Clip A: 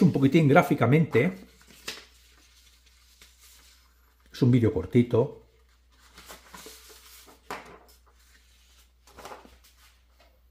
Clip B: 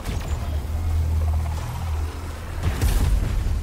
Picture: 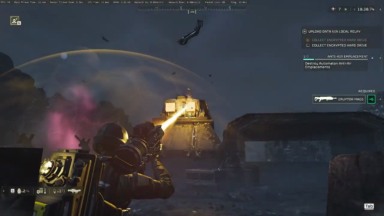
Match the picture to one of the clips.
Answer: B